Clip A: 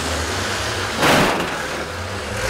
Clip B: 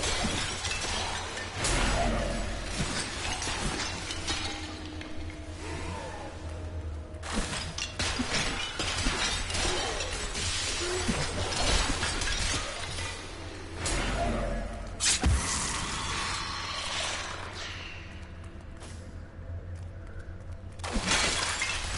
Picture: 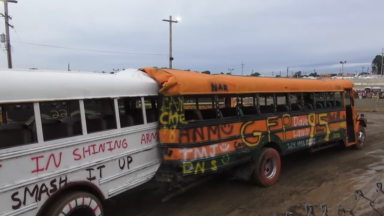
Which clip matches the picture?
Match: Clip A